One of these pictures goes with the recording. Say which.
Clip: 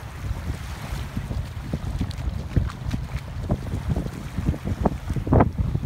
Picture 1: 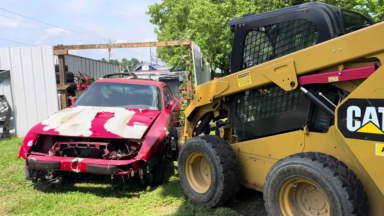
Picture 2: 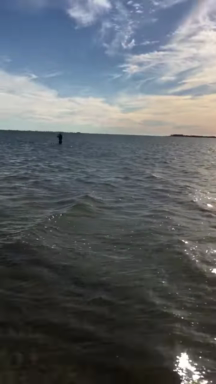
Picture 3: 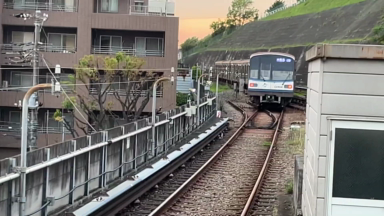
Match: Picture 2